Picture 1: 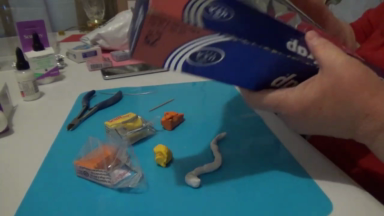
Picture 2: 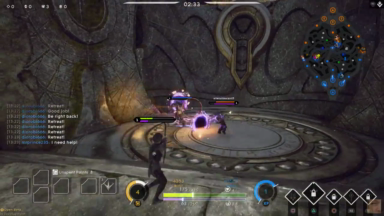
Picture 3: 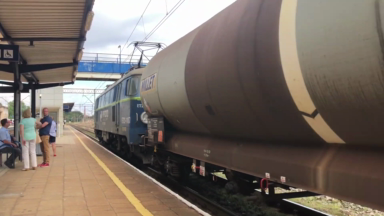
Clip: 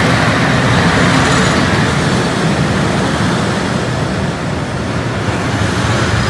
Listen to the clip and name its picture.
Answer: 3